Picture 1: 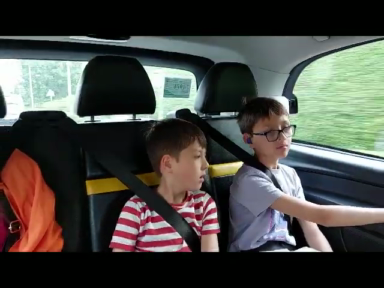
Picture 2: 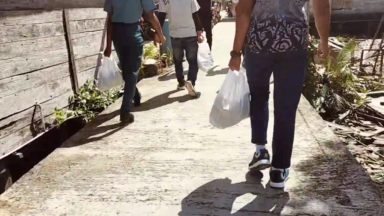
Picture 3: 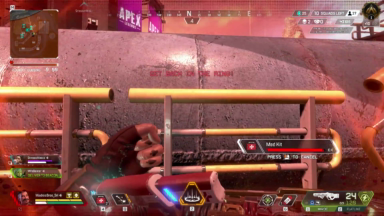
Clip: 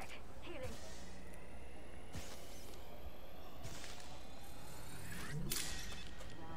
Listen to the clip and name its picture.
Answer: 3